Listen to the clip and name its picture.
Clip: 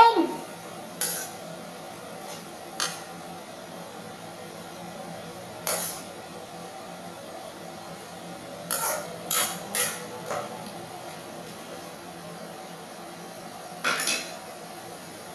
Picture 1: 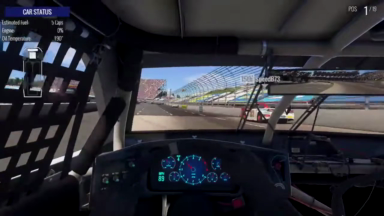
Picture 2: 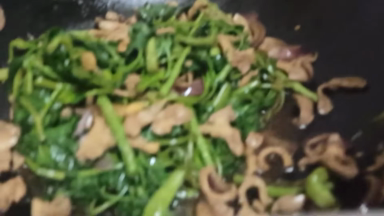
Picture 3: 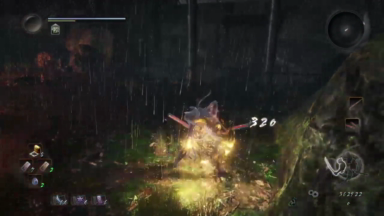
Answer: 2